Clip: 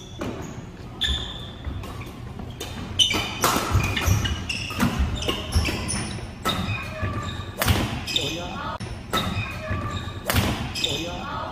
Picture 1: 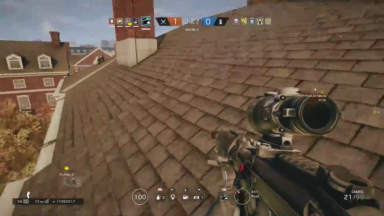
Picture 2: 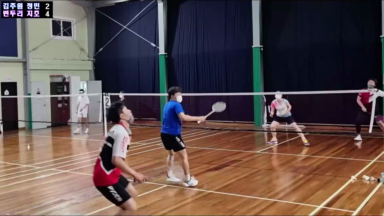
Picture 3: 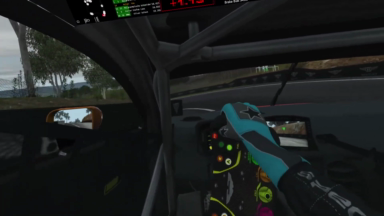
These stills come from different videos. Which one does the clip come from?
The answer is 2